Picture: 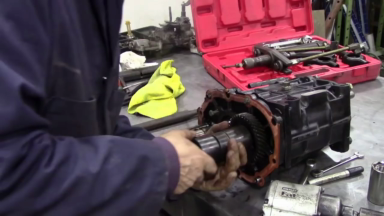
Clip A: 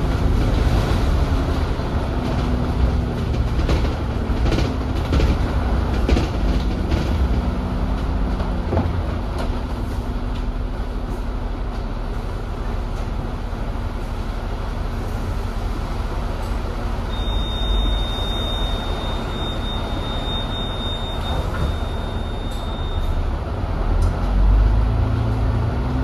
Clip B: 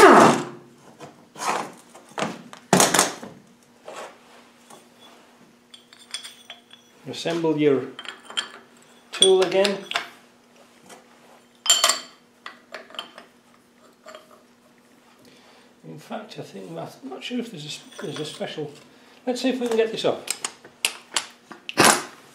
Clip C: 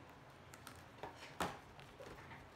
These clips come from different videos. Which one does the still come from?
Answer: B